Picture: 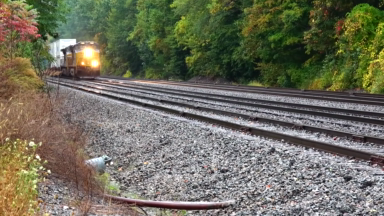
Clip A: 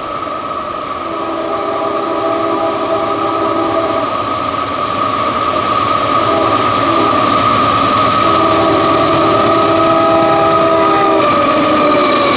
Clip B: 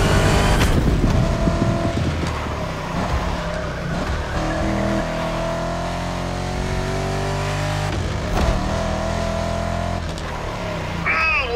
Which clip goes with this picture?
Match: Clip A